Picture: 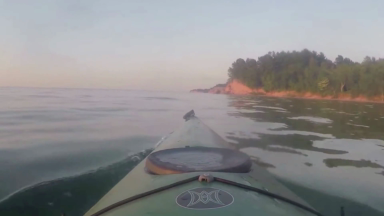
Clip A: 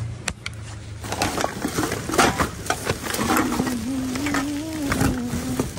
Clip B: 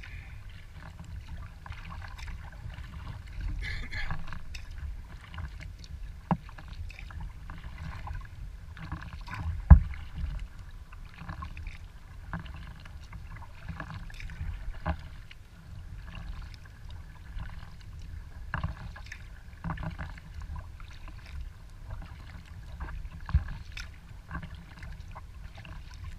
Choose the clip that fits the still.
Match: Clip B